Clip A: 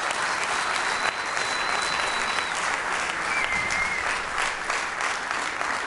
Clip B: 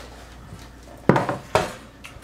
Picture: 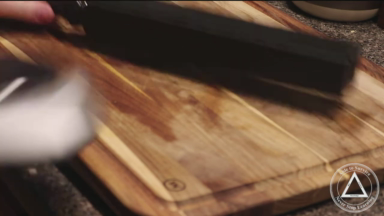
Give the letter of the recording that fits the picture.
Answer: B